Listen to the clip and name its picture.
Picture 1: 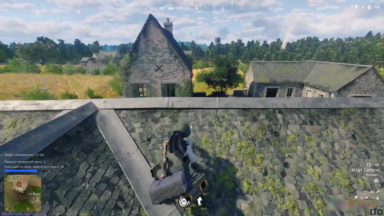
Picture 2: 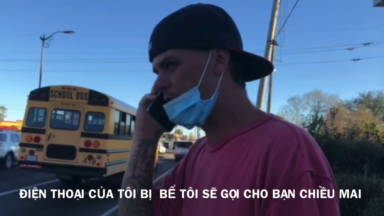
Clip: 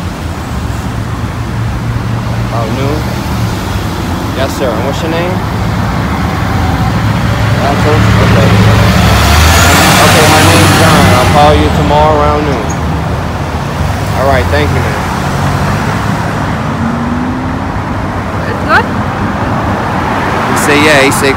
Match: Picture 2